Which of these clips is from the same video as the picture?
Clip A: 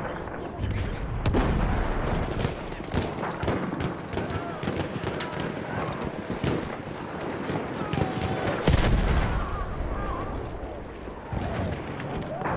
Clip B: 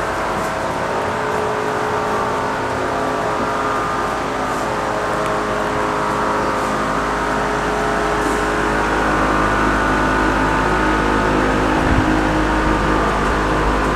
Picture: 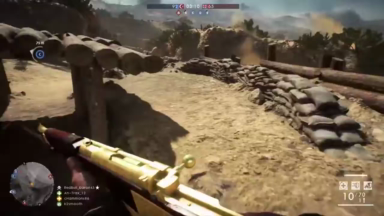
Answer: A